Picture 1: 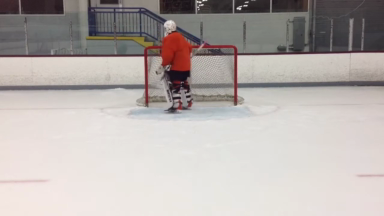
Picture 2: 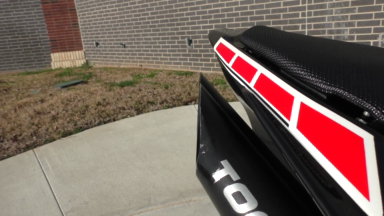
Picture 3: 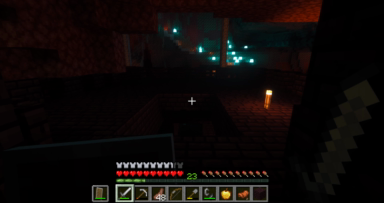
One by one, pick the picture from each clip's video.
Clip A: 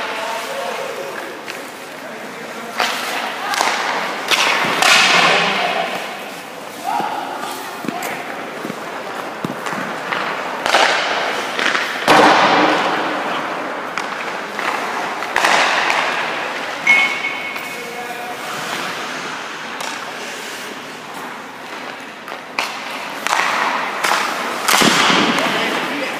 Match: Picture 1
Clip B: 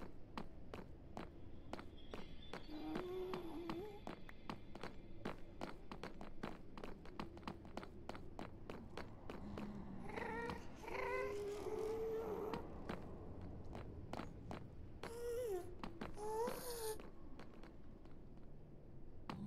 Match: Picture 3